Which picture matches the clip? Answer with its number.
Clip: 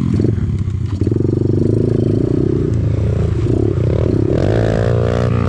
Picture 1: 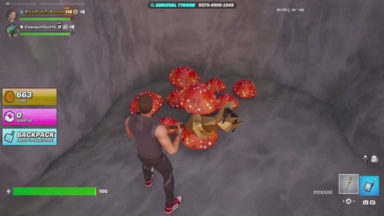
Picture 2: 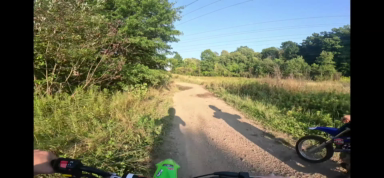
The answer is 2